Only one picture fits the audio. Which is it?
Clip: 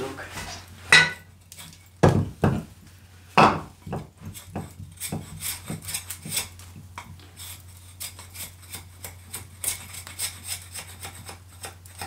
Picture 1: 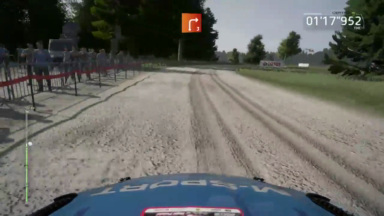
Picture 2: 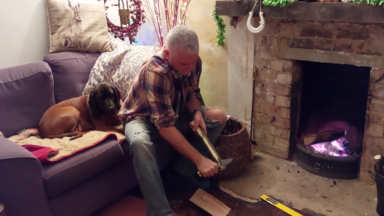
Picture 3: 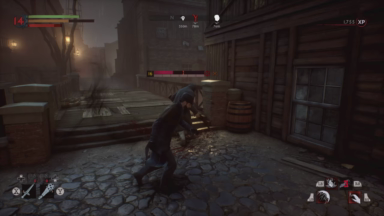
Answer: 2